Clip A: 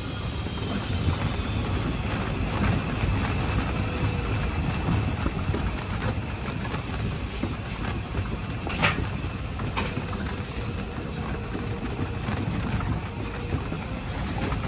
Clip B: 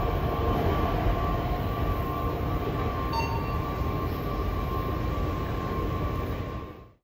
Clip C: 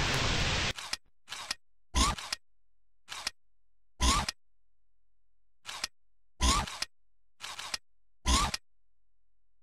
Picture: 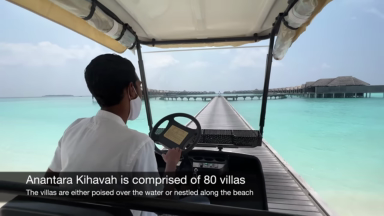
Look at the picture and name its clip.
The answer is A